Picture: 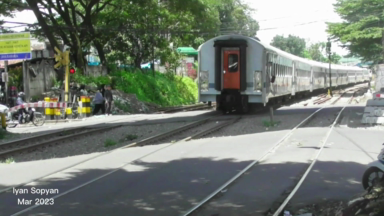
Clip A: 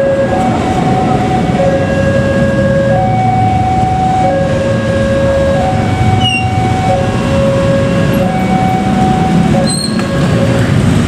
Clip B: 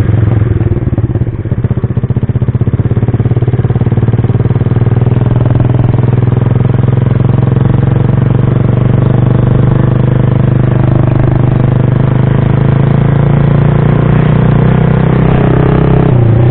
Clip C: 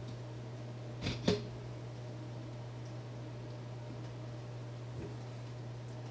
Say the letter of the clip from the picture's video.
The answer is A